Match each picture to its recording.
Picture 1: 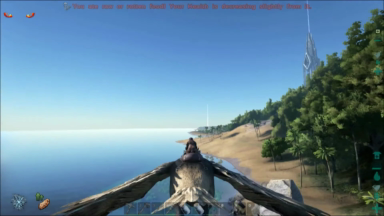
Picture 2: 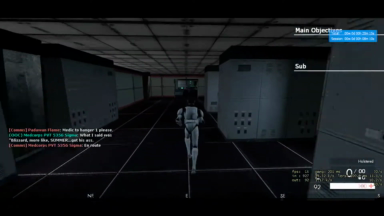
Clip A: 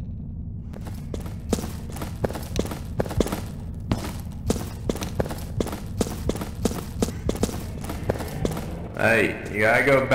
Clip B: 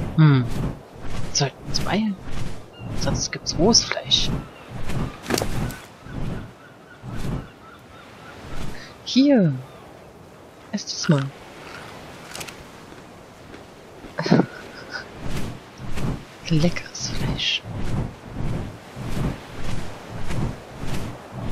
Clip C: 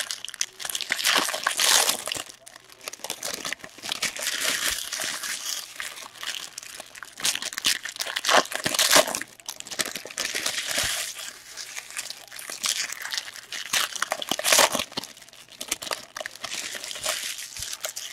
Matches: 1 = B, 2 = A